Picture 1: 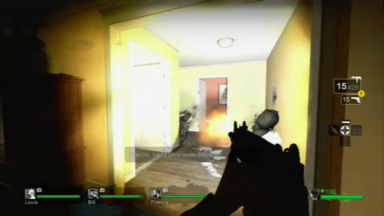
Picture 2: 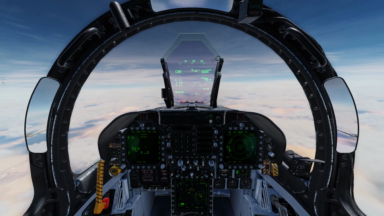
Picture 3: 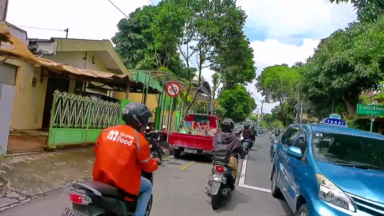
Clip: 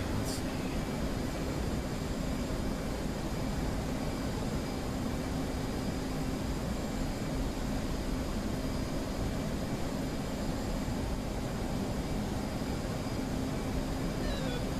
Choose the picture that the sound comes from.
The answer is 2